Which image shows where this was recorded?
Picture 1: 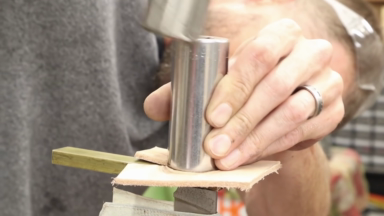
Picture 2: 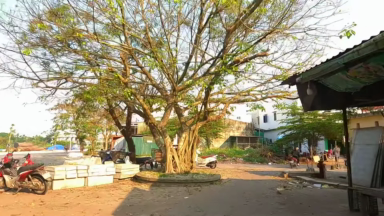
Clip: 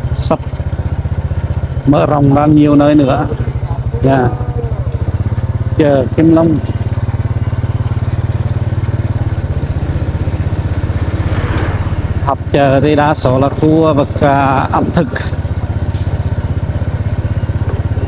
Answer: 2